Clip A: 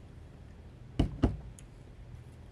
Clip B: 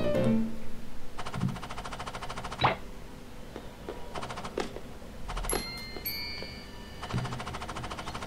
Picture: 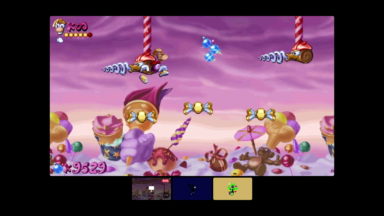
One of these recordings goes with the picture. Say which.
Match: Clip B